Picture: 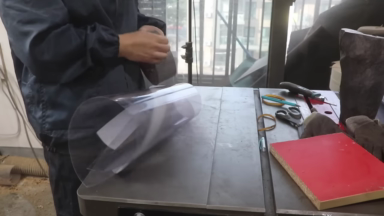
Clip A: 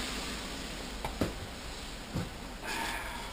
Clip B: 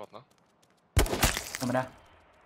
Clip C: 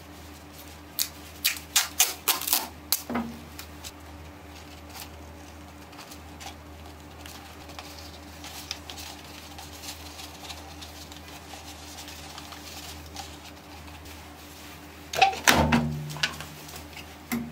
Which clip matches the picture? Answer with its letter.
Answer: C